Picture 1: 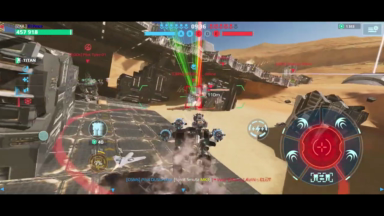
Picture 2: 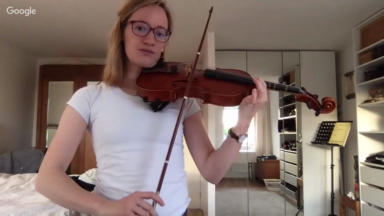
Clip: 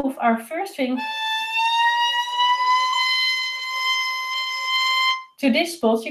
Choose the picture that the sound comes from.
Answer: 2